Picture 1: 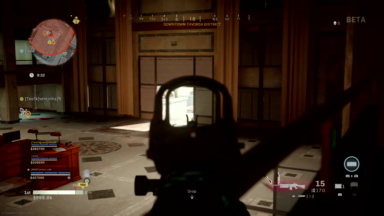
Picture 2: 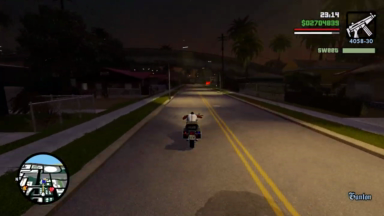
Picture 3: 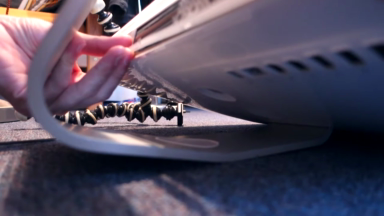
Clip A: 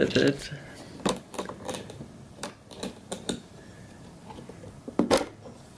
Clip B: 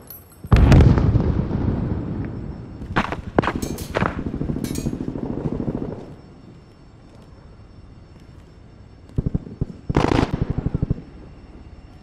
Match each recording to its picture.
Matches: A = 3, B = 1